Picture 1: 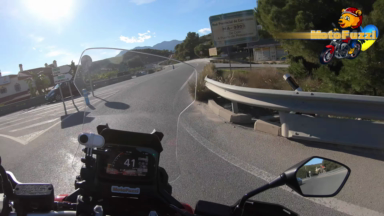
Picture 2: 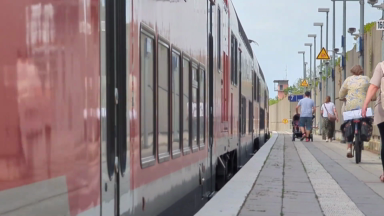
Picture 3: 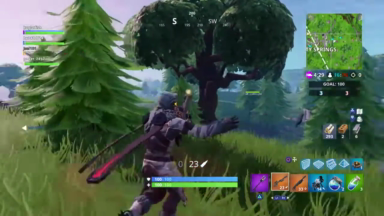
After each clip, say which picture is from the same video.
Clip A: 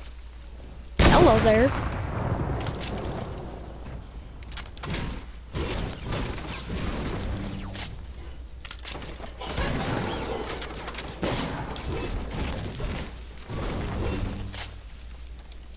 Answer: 3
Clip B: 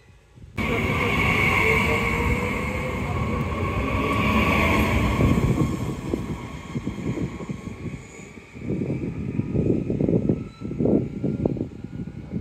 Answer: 2